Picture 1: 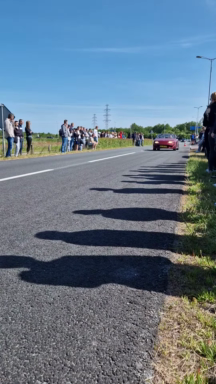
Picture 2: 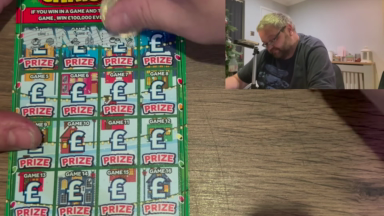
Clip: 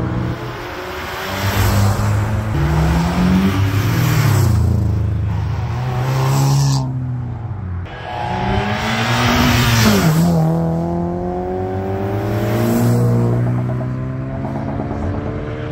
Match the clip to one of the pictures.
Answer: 1